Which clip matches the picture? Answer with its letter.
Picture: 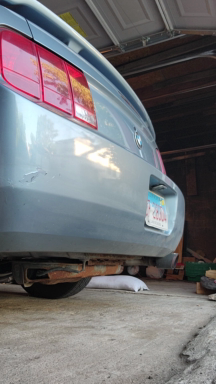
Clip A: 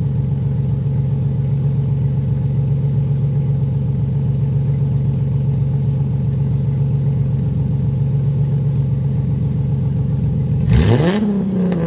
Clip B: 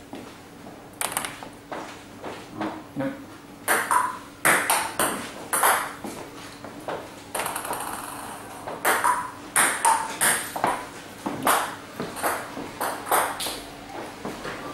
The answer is A